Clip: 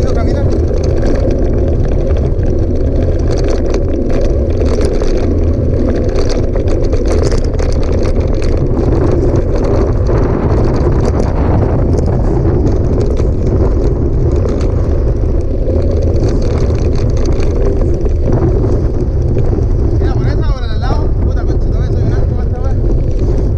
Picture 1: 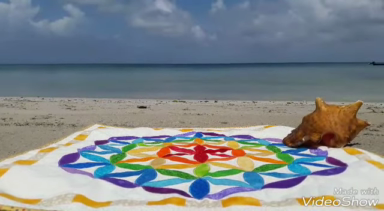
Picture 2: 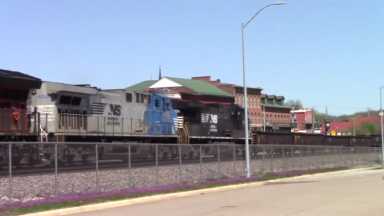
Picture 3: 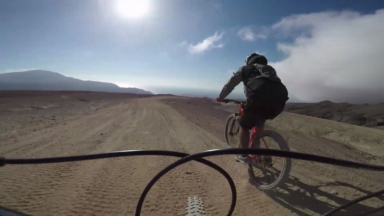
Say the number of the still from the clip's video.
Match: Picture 3